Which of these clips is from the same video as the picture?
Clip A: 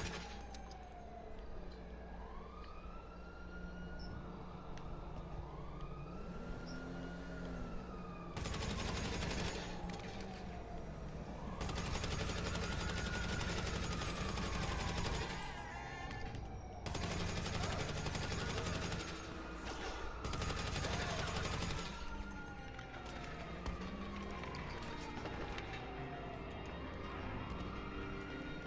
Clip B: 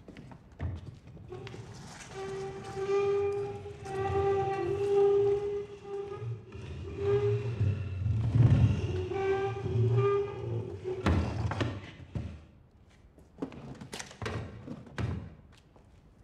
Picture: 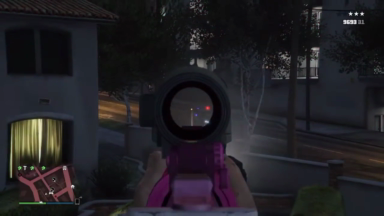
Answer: A